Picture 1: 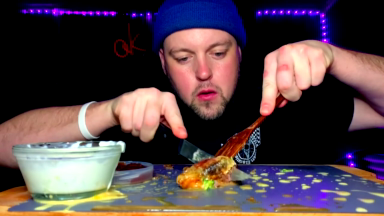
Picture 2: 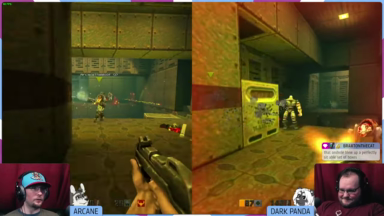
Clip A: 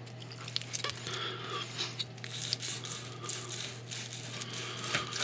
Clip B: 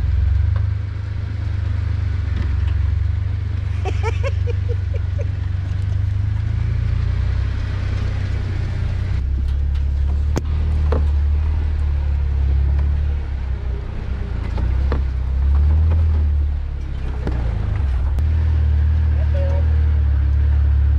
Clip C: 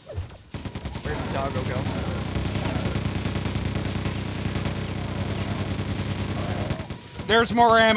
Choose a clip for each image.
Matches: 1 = A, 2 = C